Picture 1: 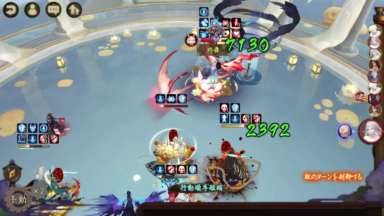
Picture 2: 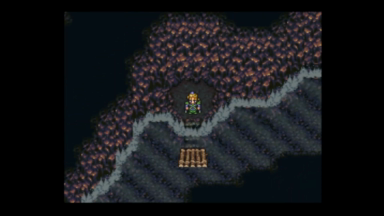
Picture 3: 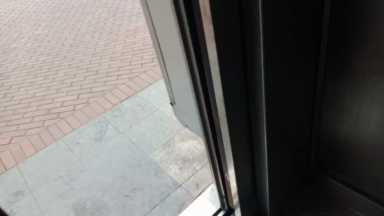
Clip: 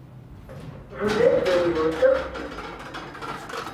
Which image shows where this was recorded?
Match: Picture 3